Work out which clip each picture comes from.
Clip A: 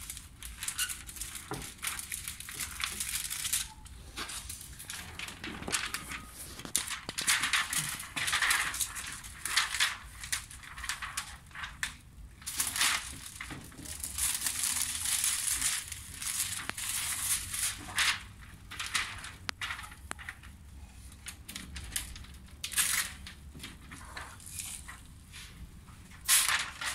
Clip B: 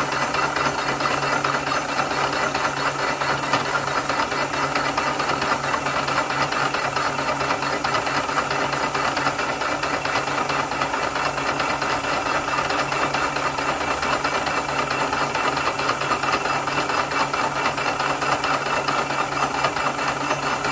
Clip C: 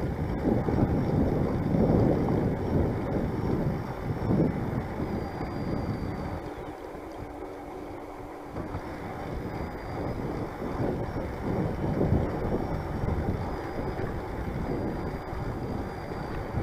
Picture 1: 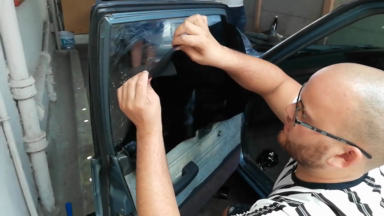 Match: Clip A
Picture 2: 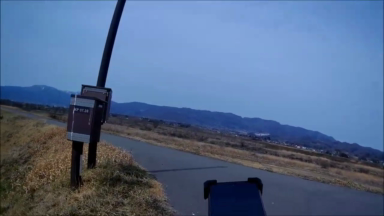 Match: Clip C